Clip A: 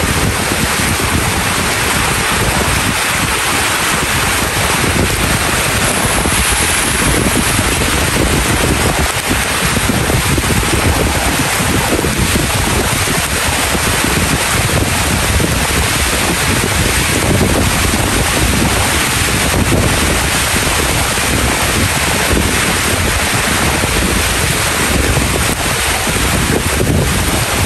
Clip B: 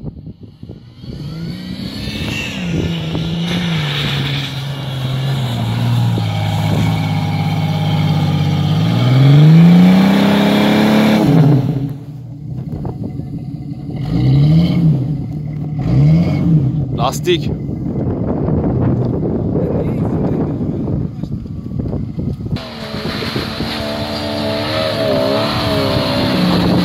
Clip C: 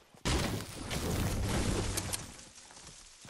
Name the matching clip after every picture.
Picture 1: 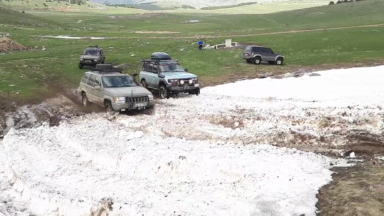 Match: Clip B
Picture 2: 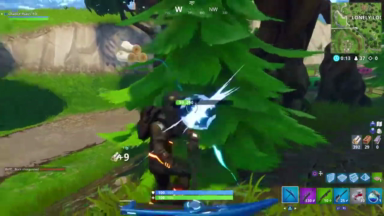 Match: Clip C